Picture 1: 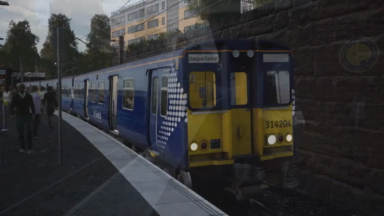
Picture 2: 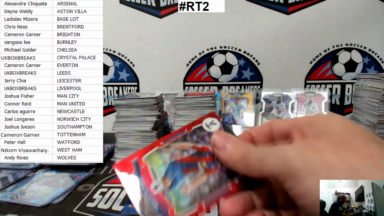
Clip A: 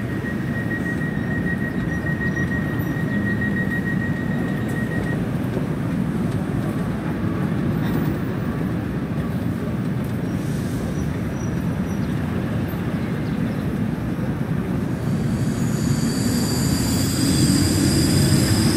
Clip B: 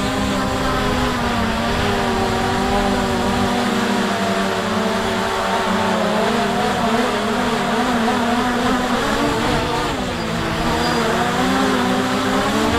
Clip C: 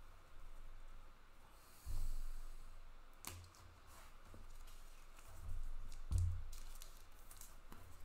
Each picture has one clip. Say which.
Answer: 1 A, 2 C